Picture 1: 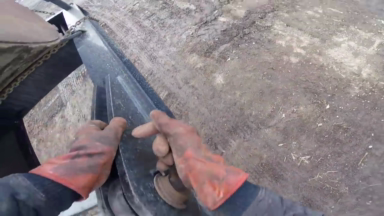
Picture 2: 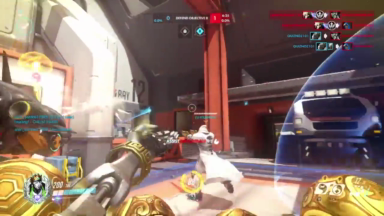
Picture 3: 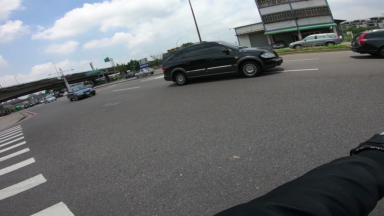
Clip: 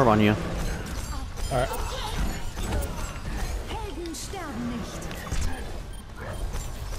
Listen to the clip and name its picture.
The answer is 2